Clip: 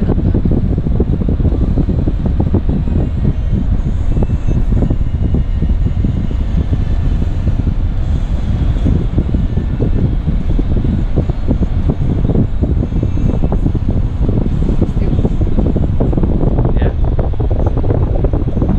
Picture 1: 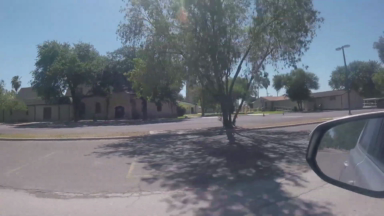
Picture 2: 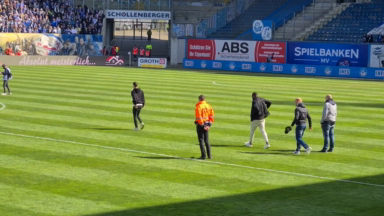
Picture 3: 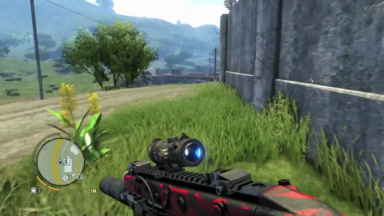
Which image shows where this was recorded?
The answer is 1